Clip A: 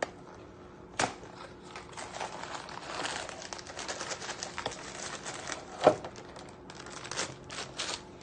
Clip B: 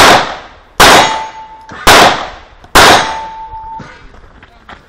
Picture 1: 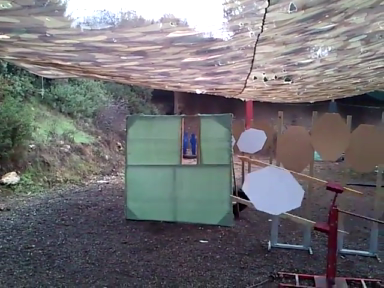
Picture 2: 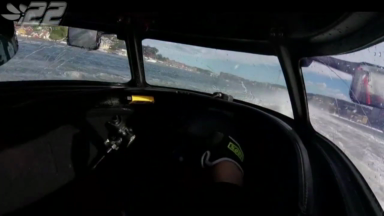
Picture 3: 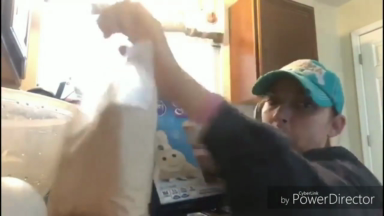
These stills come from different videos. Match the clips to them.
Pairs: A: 3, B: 1